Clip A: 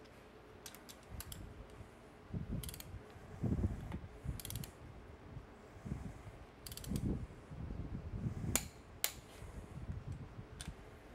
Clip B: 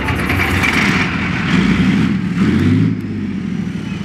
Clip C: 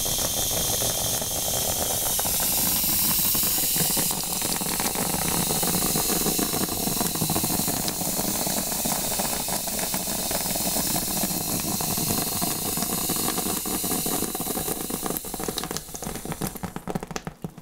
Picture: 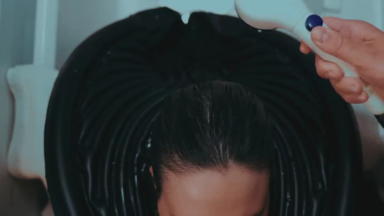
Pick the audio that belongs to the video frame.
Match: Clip C